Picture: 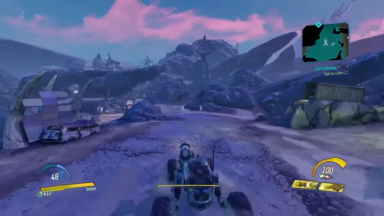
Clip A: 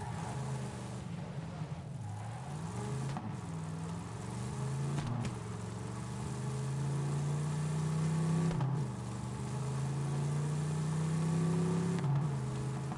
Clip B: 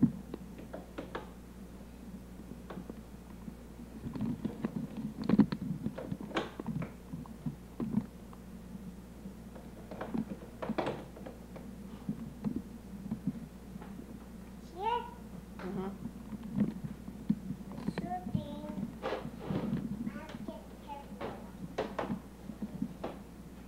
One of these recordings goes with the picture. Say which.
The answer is A